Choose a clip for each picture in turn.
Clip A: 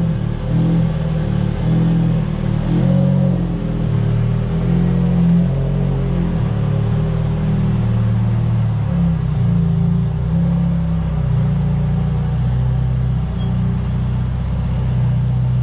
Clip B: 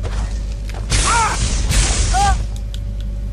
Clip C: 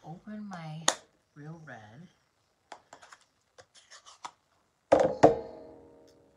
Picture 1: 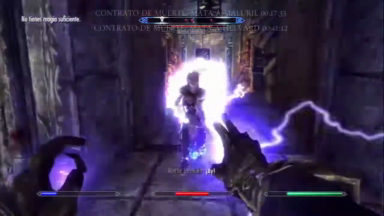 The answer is B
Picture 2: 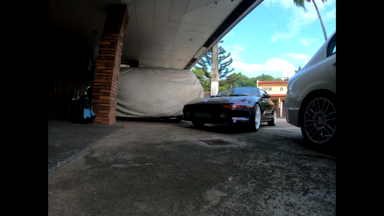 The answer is A